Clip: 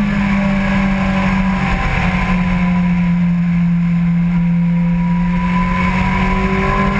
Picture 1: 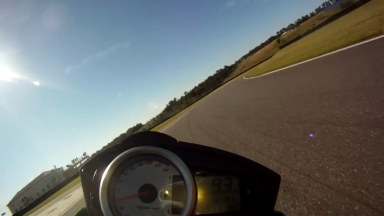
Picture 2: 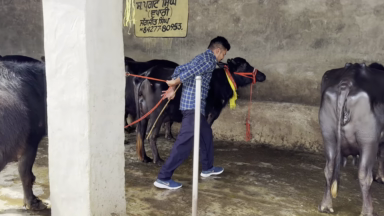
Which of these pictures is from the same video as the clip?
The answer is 1